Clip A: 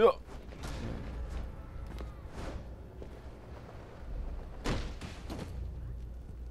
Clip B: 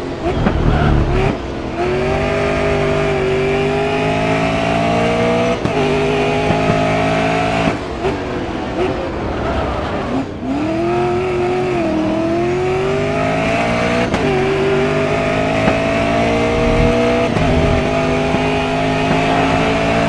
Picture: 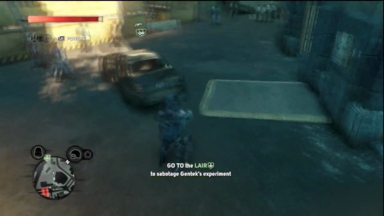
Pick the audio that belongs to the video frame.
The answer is A